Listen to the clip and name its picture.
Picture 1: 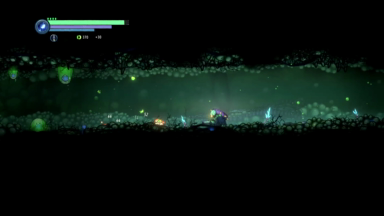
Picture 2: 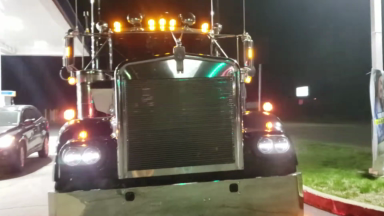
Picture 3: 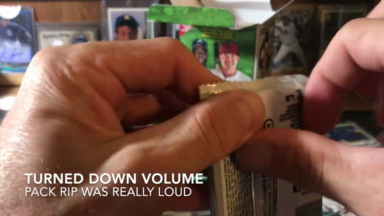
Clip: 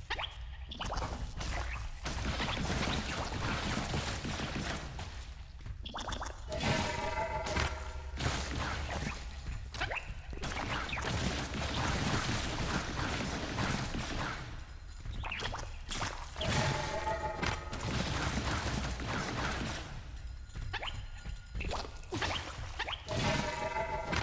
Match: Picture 1